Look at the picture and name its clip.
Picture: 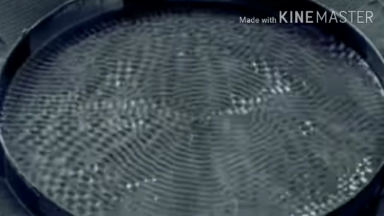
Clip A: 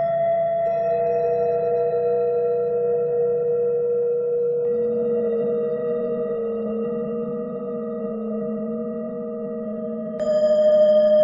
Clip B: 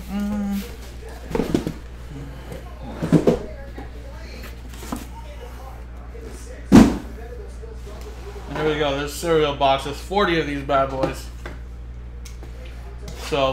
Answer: A